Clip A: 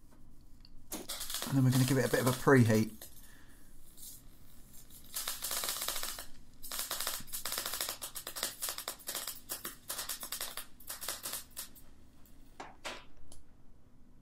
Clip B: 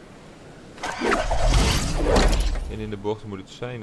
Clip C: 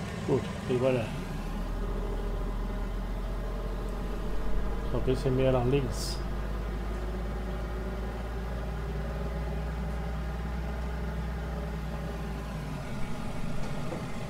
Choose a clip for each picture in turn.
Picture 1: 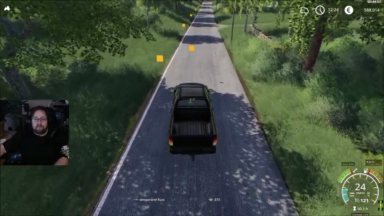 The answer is C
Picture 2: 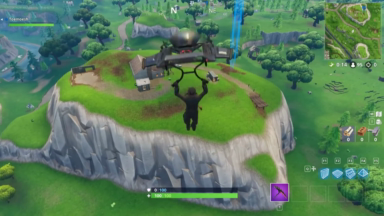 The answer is B